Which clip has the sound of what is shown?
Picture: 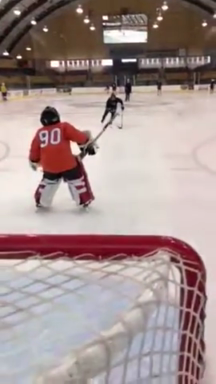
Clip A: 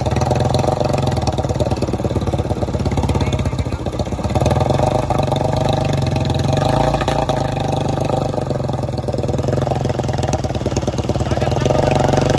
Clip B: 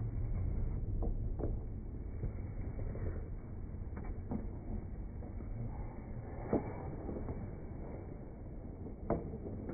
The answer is B